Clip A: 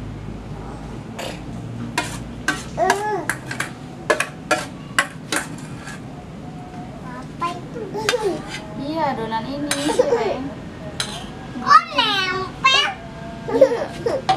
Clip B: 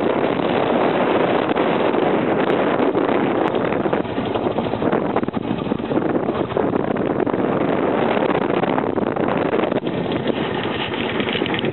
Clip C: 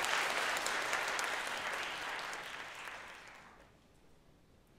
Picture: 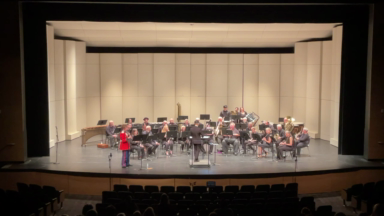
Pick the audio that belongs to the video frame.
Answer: C